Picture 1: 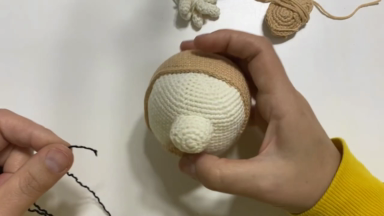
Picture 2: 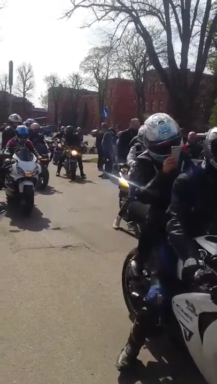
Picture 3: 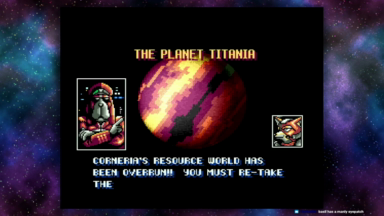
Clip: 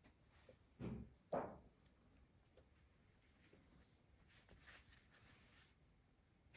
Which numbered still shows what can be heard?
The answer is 1